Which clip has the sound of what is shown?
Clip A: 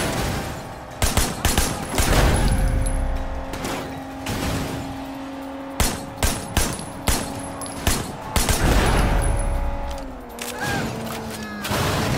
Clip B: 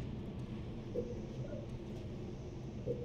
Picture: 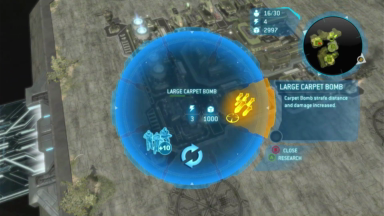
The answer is B